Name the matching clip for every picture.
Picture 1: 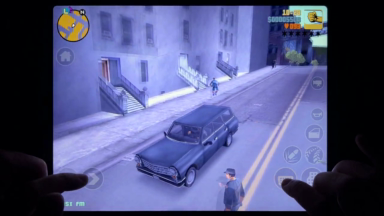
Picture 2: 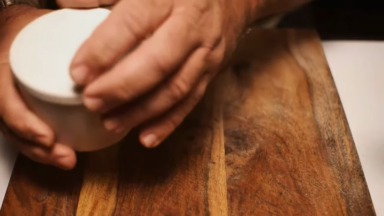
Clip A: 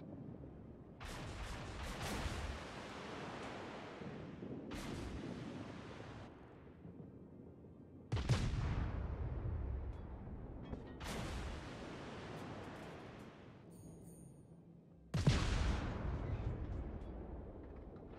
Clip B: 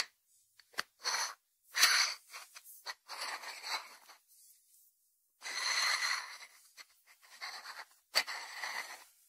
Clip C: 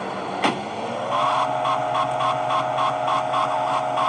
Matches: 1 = C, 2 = B